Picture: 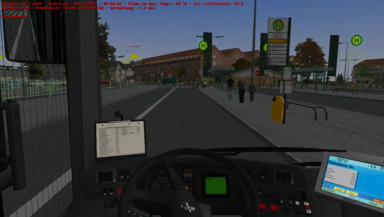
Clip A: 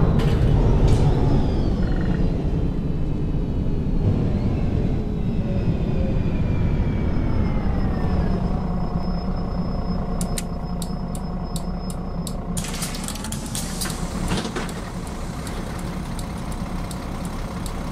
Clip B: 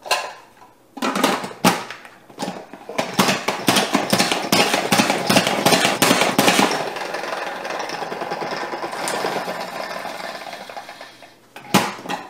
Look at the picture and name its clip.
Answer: A